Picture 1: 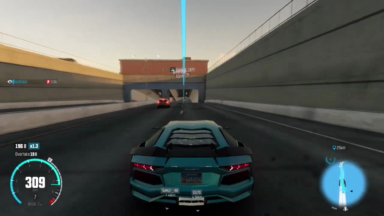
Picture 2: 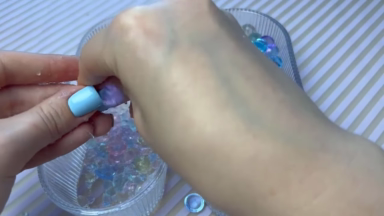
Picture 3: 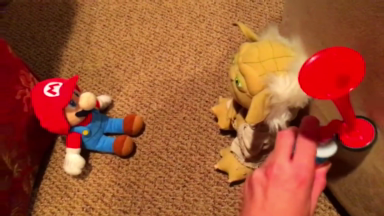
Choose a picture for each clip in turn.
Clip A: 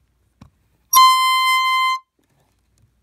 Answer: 3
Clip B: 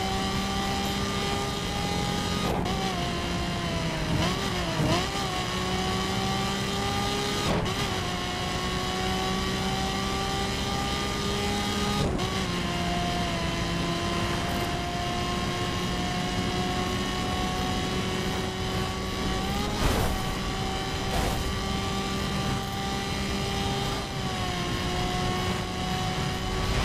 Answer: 1